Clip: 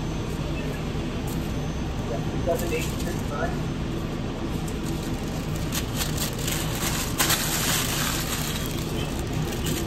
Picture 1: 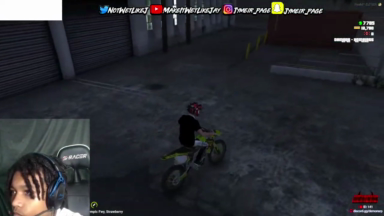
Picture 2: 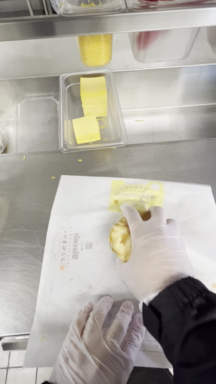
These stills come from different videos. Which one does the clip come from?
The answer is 2